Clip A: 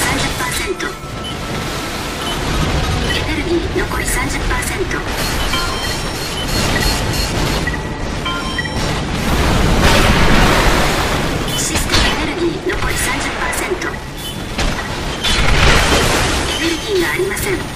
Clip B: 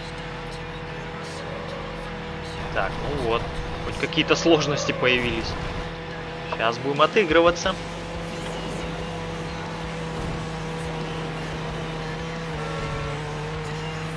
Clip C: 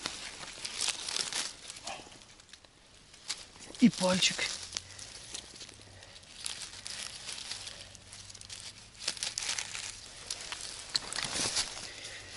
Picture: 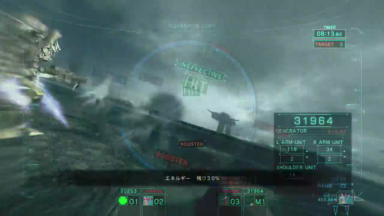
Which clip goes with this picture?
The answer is A